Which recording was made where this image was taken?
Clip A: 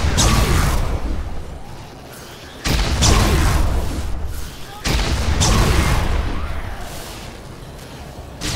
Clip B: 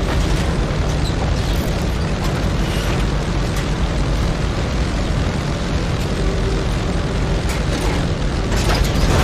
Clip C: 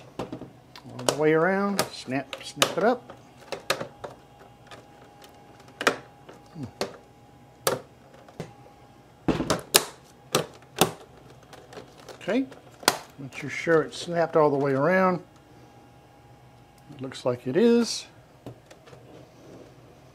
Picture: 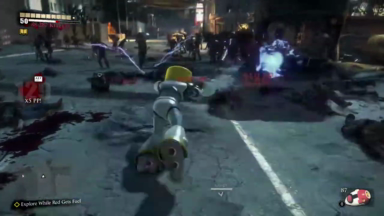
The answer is A